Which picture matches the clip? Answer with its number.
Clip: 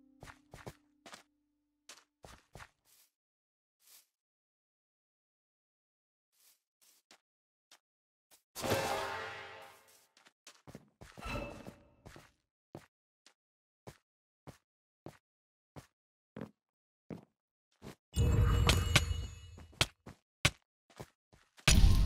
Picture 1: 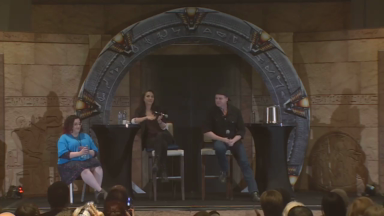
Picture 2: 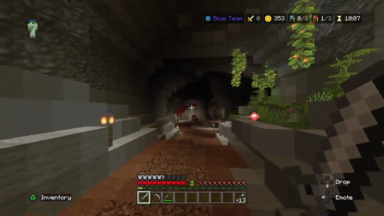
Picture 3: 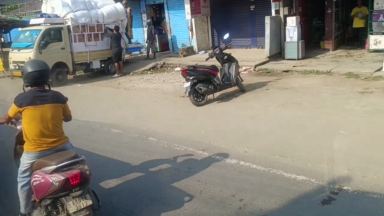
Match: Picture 2